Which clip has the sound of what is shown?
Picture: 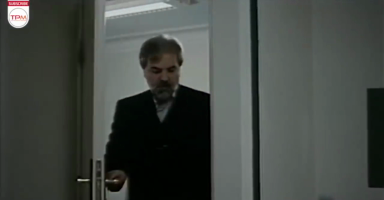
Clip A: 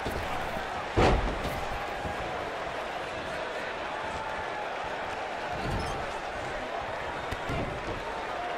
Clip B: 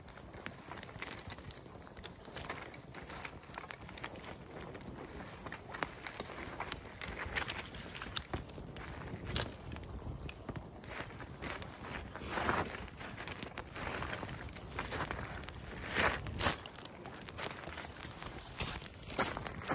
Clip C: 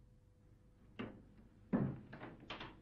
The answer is C